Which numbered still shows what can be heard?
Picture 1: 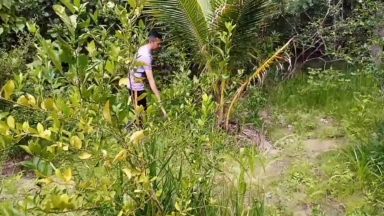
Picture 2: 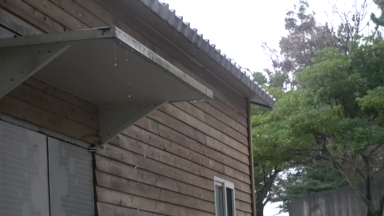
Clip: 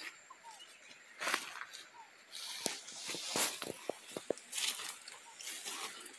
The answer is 1